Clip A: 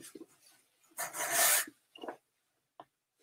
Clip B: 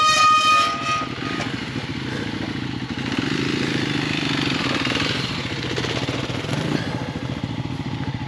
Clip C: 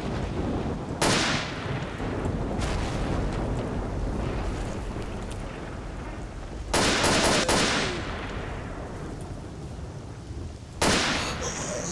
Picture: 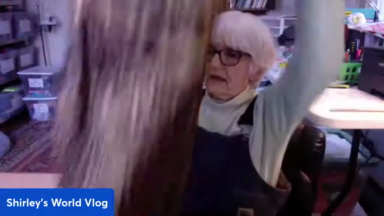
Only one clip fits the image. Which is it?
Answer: A